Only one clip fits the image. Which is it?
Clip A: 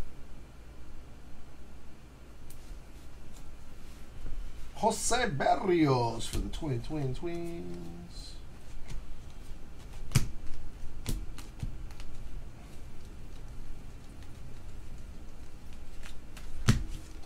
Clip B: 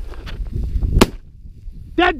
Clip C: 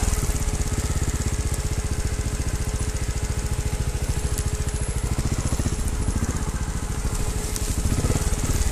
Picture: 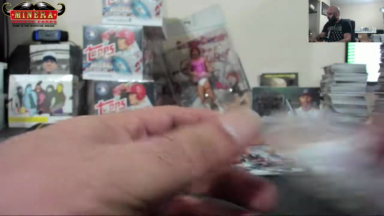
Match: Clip A